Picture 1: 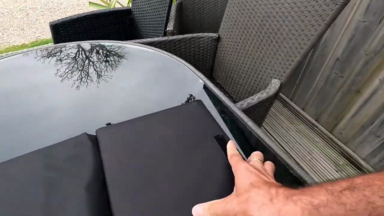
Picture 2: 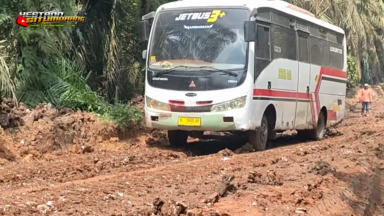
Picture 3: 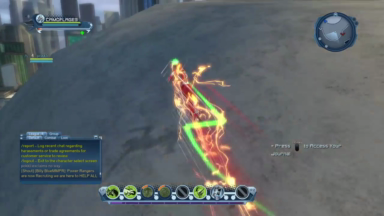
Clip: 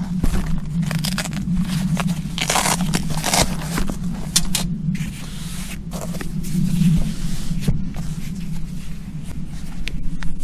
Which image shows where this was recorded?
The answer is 1